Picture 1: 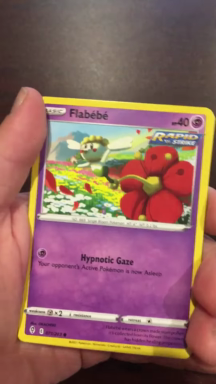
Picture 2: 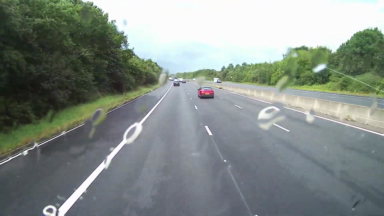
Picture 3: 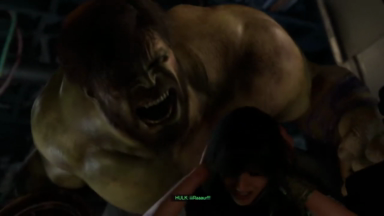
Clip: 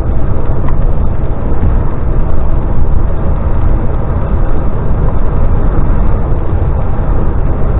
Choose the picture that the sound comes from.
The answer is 2